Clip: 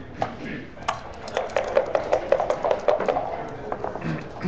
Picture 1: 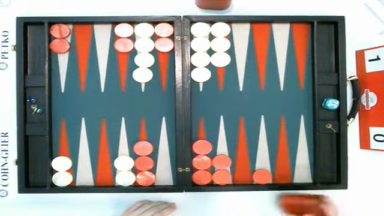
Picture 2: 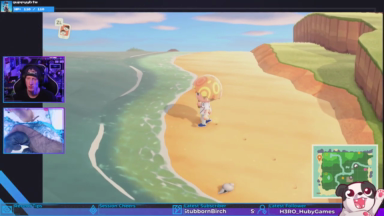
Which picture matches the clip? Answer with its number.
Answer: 1